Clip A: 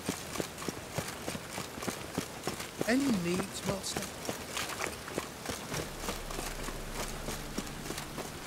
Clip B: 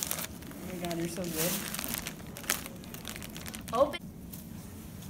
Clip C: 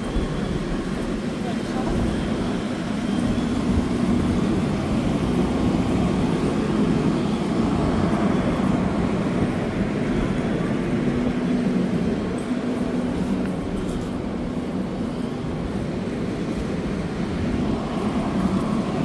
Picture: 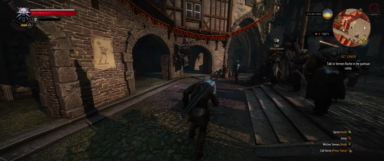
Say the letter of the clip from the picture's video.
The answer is A